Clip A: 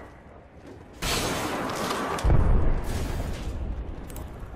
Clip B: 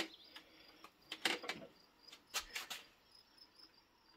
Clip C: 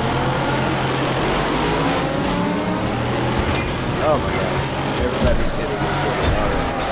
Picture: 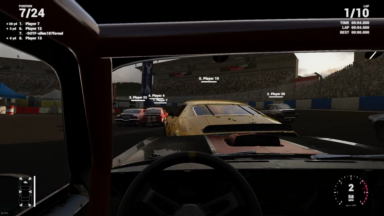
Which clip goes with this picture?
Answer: C